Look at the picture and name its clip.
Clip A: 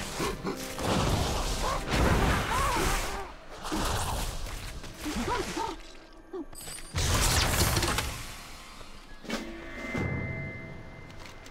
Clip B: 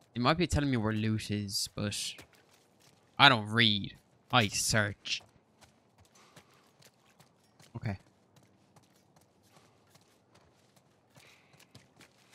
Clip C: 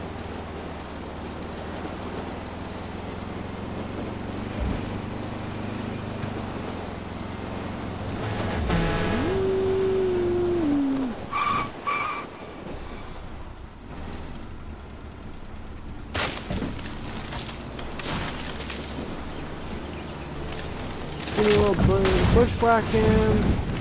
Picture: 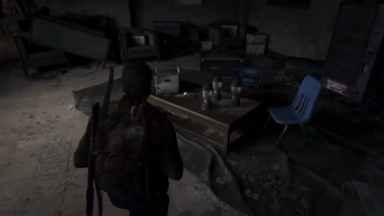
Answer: B